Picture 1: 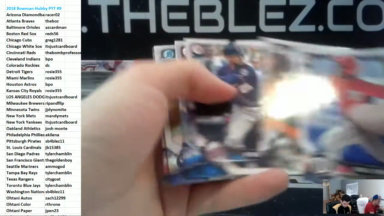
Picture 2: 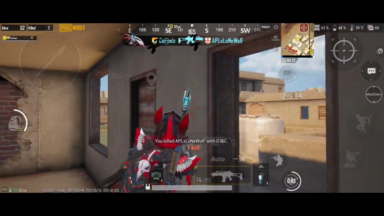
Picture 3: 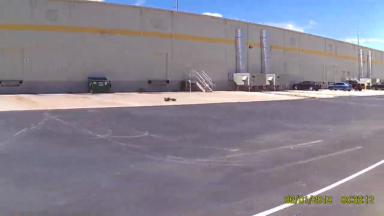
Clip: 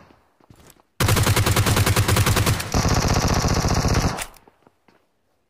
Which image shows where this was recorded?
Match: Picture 2